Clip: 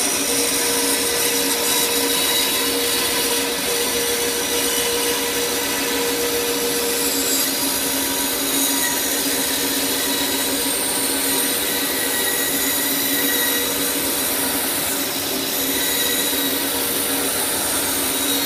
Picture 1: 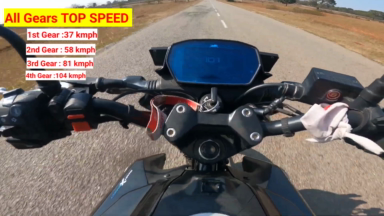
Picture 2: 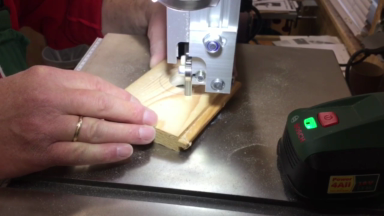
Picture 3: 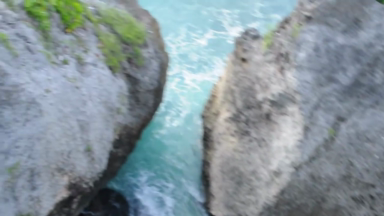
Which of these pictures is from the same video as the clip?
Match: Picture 2